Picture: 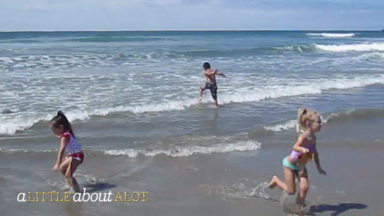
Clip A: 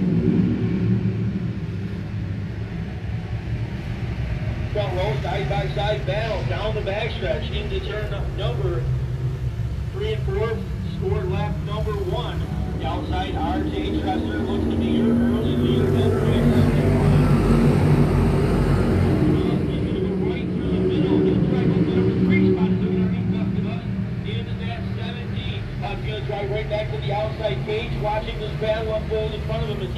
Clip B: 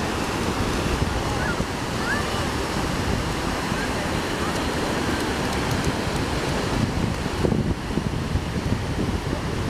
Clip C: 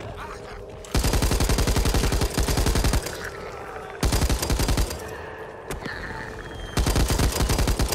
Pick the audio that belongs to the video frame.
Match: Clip B